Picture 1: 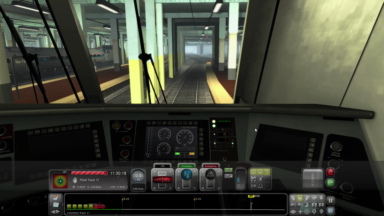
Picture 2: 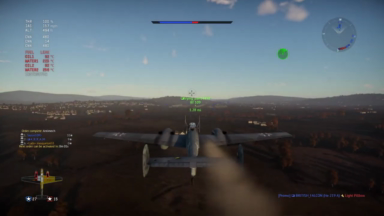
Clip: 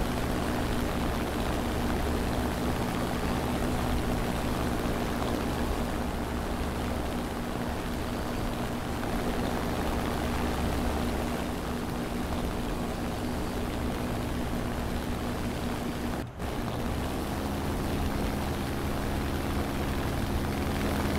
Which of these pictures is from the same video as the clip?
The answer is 2